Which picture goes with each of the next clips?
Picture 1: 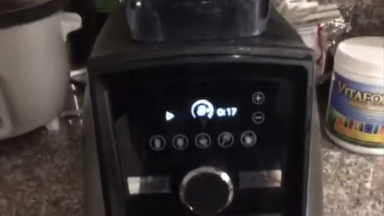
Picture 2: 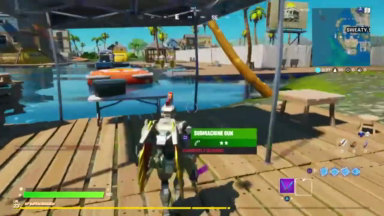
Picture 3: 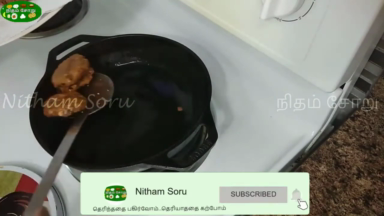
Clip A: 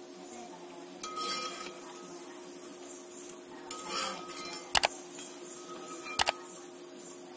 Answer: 3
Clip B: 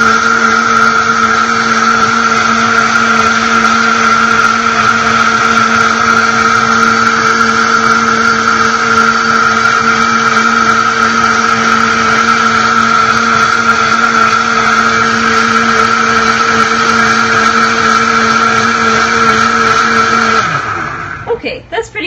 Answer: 1